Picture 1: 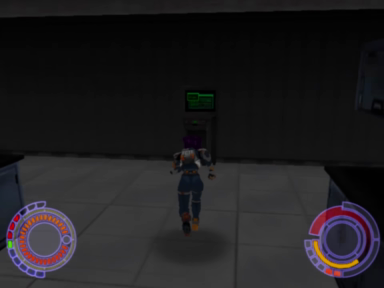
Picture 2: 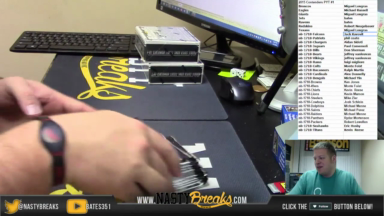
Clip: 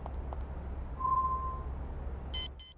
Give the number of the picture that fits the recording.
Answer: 1